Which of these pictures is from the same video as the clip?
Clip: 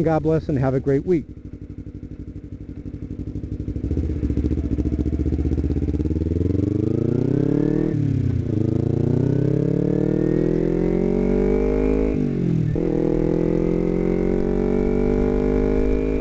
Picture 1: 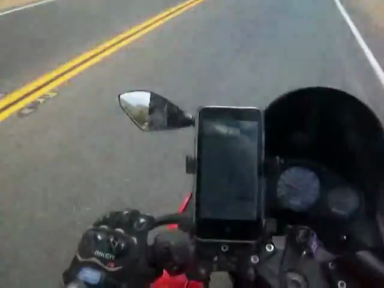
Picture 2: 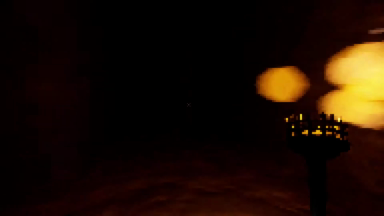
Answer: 1